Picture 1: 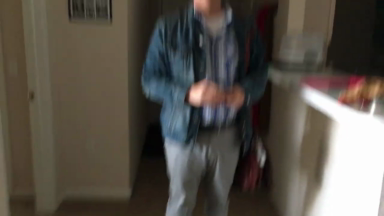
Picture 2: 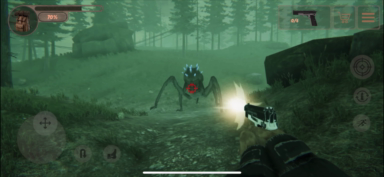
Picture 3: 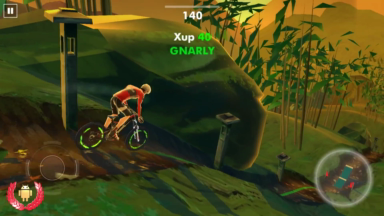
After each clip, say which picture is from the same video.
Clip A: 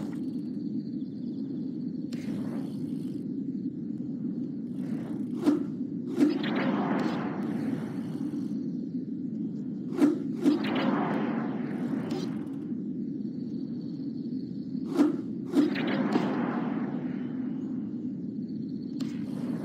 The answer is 3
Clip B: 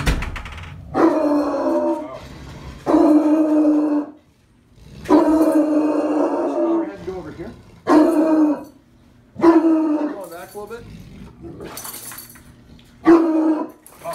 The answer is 1